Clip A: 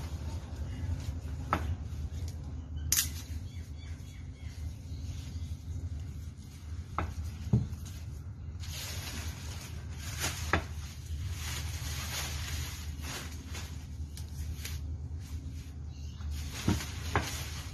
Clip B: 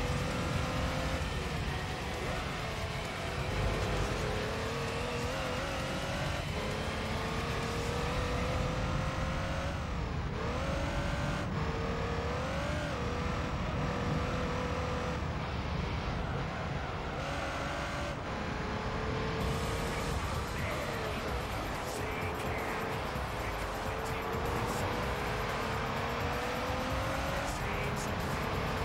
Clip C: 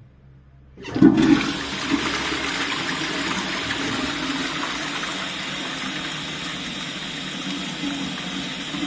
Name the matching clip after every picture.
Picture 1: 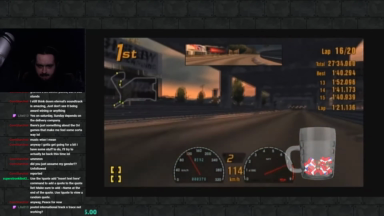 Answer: B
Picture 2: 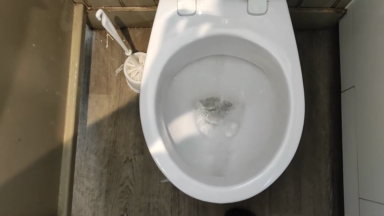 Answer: C